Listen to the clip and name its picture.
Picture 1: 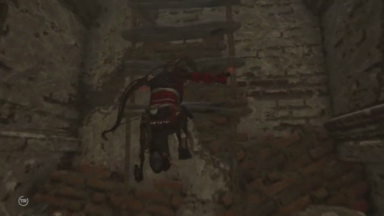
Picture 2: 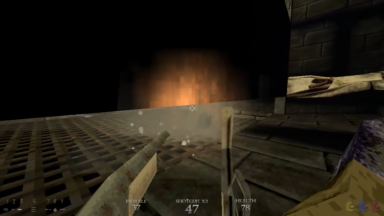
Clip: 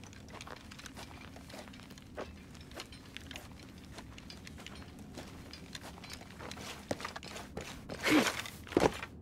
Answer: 1